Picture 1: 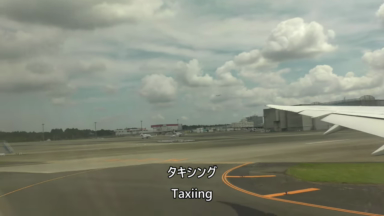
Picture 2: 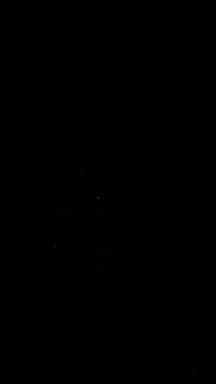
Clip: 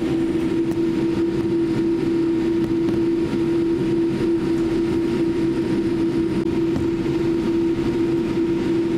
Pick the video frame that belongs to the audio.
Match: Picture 1